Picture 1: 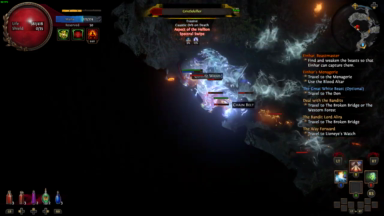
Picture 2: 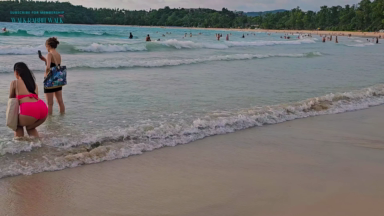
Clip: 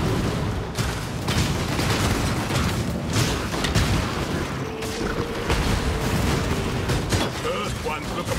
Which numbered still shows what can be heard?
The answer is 1